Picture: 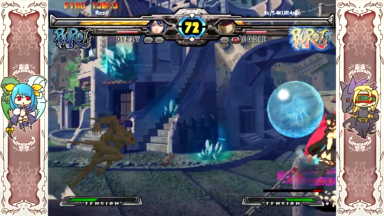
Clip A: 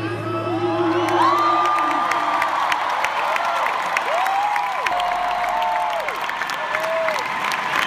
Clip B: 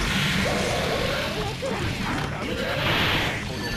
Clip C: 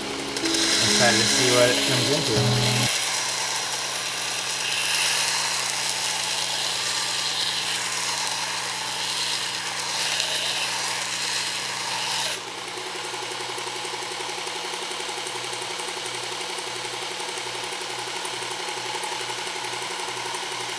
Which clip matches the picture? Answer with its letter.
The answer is B